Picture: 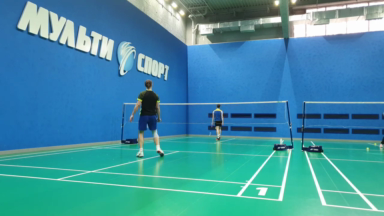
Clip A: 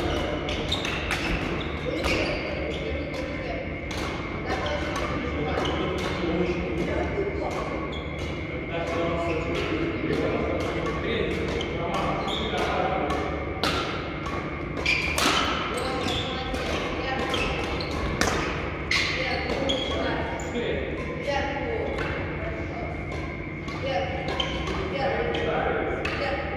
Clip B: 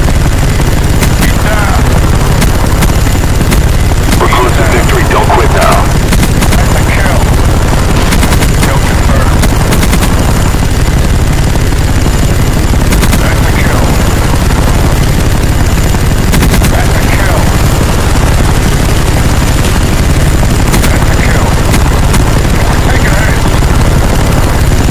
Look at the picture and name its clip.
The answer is A